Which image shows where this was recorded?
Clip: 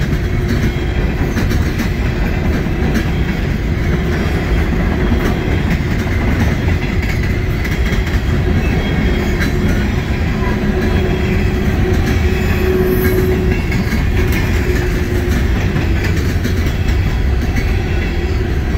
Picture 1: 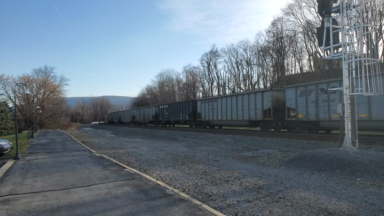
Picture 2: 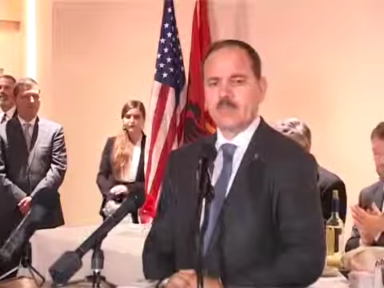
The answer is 1